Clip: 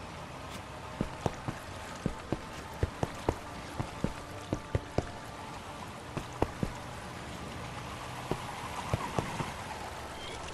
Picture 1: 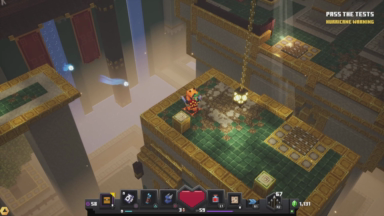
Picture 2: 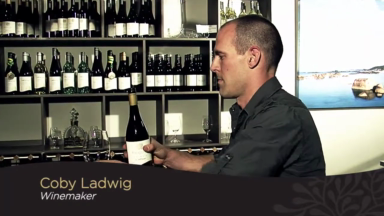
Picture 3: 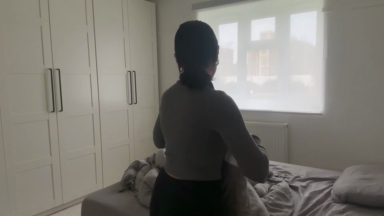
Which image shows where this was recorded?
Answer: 1